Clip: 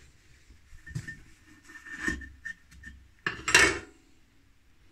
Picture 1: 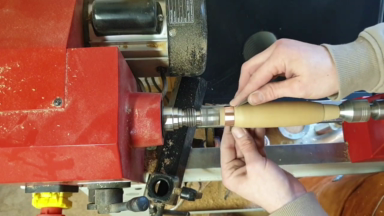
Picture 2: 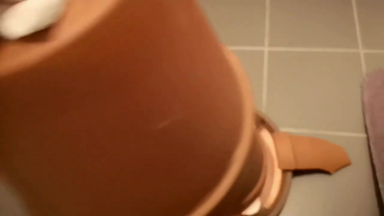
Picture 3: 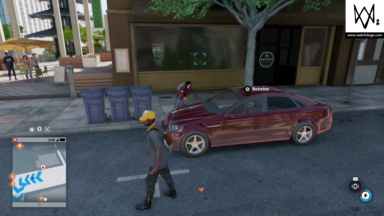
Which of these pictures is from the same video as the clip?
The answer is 2